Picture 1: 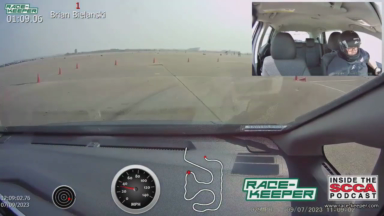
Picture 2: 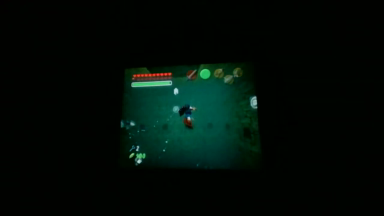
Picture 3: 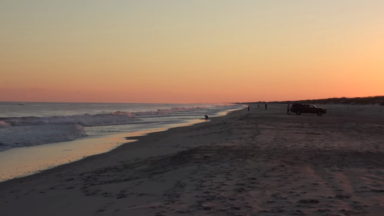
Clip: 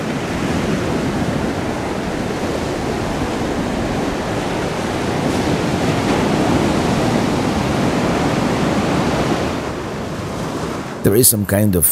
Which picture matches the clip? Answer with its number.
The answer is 3